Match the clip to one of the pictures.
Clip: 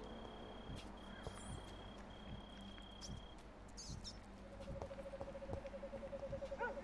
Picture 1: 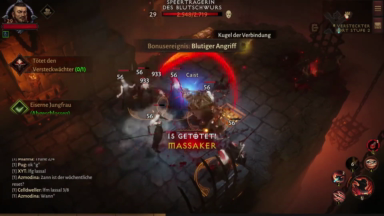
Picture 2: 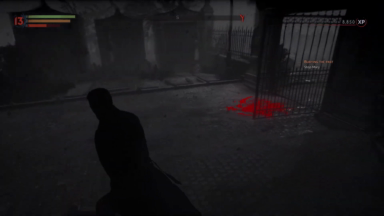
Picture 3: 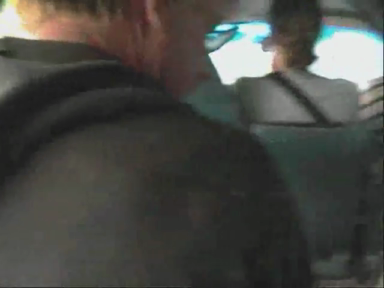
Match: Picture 2